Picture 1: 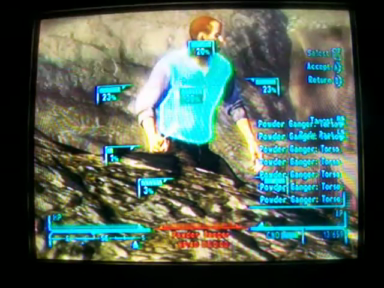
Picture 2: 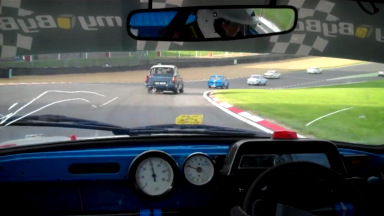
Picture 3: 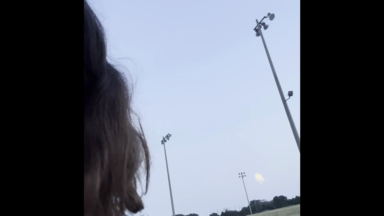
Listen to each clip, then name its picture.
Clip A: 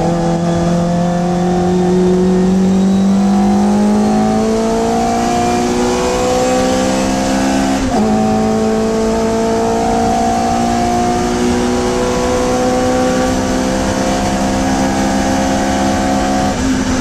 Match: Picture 2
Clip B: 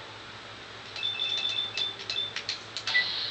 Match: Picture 1